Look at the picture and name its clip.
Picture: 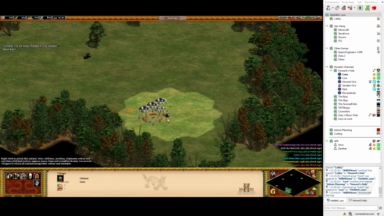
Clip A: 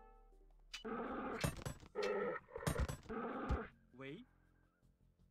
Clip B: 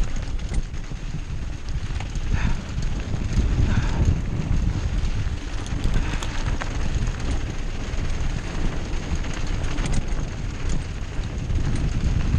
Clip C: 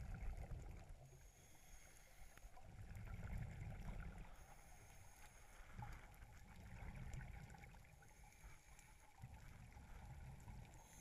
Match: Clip A